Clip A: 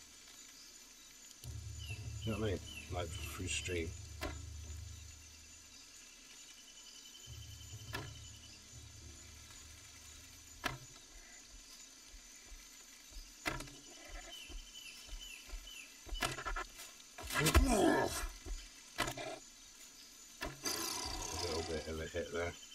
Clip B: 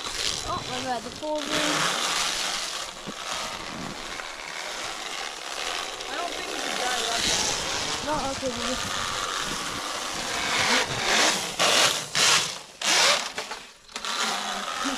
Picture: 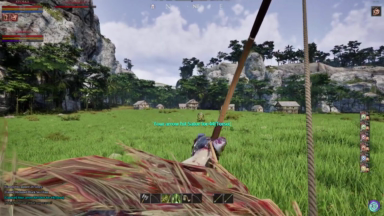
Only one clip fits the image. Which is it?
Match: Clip A